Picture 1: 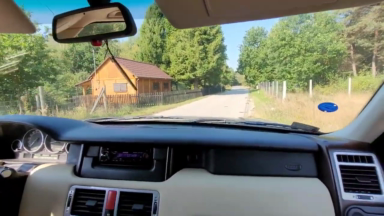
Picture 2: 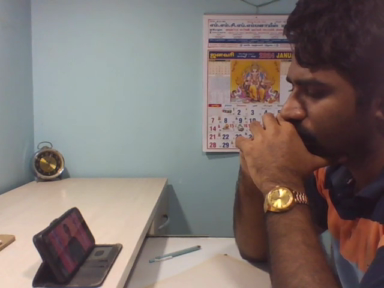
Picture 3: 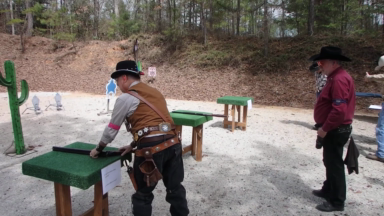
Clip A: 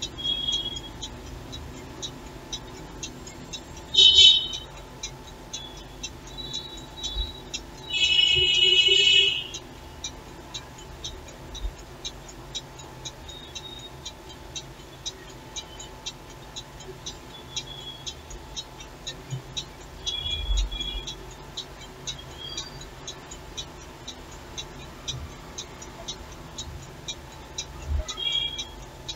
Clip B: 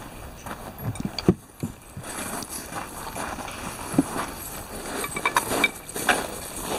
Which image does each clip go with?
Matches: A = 2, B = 3